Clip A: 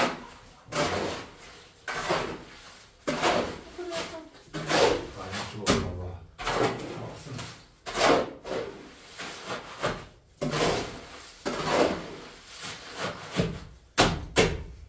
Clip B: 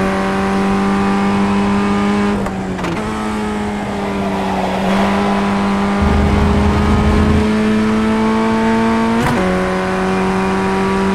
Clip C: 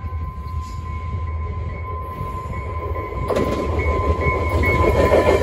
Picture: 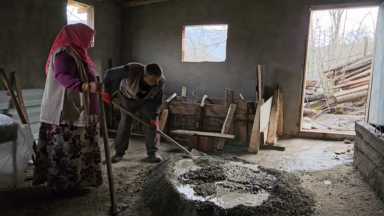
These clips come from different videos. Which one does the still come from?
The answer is A